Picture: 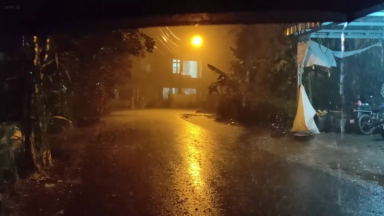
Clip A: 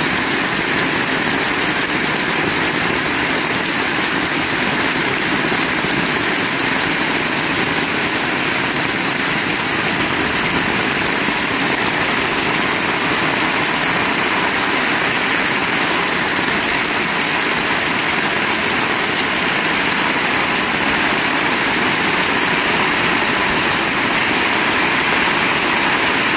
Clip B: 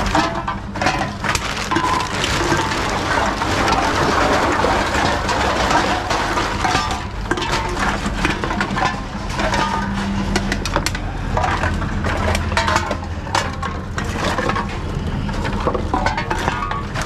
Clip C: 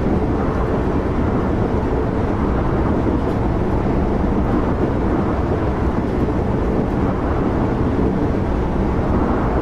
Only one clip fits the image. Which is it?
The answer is A